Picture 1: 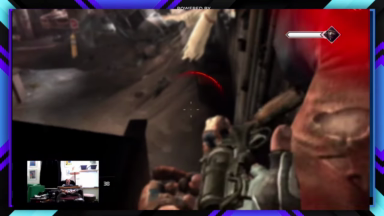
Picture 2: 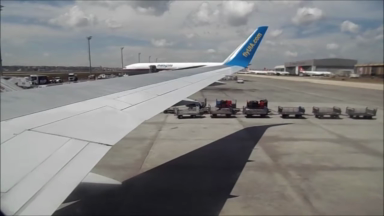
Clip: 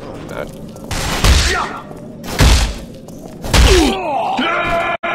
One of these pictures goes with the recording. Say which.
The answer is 1